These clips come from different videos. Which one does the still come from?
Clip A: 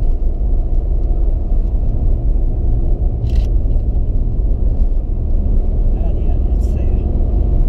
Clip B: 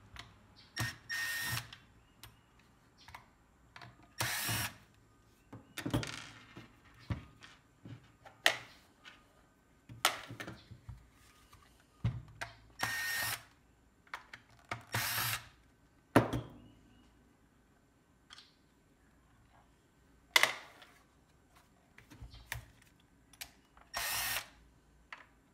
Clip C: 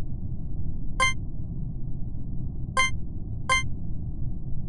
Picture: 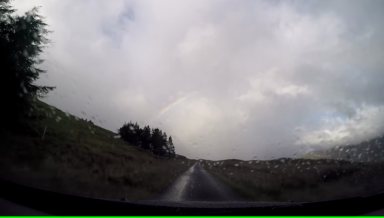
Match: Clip A